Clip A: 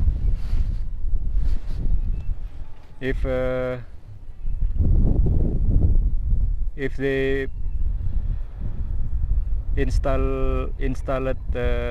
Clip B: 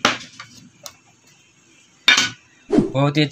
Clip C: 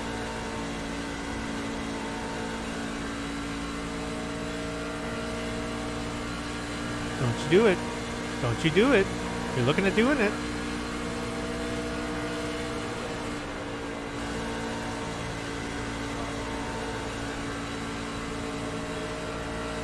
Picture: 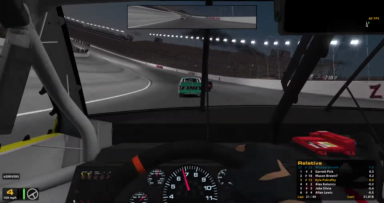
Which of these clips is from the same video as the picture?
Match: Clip C